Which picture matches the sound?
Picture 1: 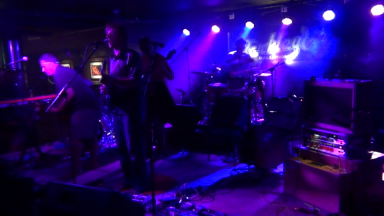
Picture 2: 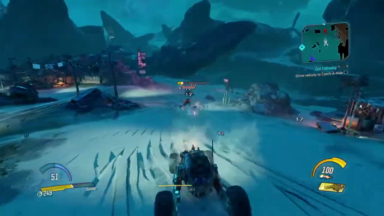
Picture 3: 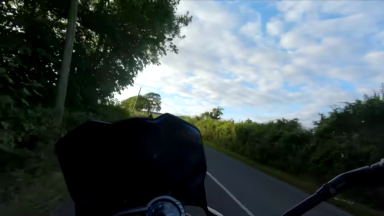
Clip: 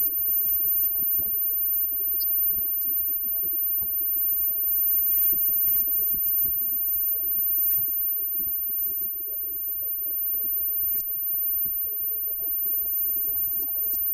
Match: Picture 1